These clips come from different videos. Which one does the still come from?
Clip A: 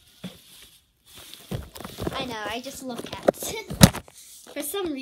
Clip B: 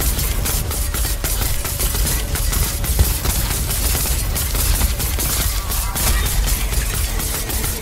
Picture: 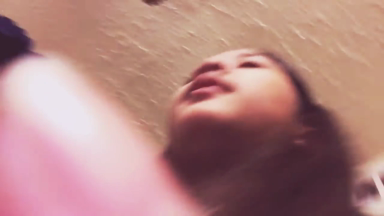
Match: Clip A